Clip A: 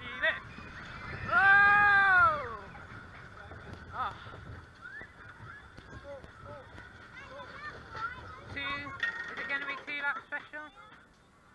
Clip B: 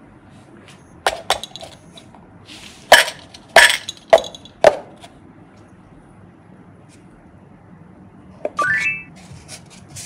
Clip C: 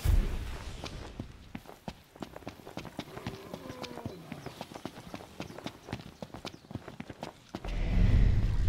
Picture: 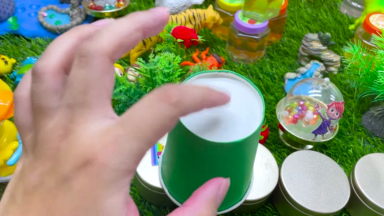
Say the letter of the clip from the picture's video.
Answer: B